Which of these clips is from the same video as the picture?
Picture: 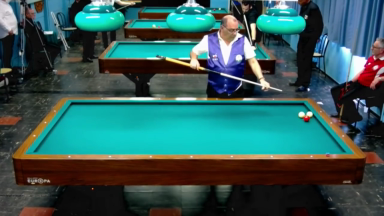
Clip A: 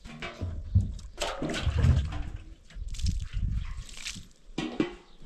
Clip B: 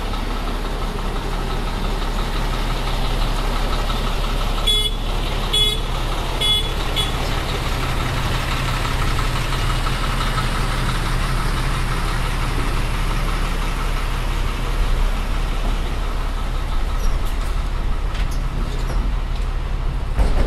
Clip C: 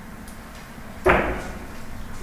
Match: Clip C